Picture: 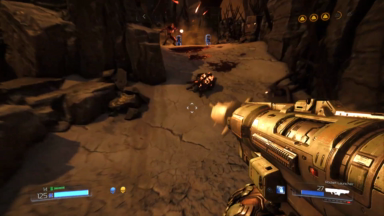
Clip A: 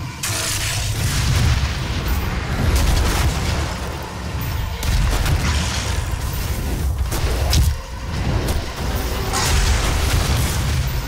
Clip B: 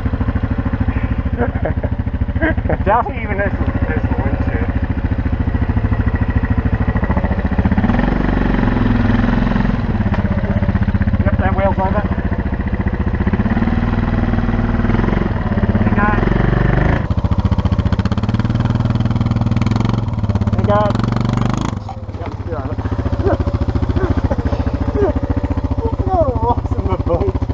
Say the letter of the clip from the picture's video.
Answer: A